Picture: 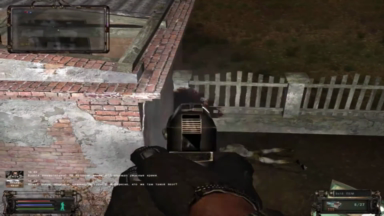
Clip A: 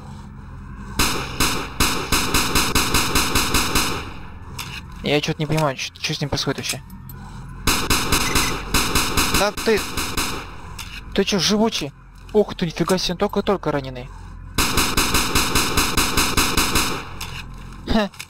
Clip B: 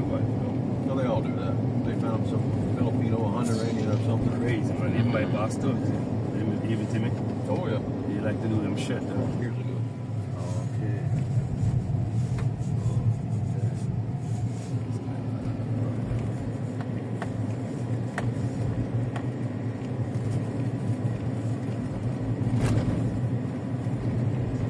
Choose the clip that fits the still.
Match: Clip A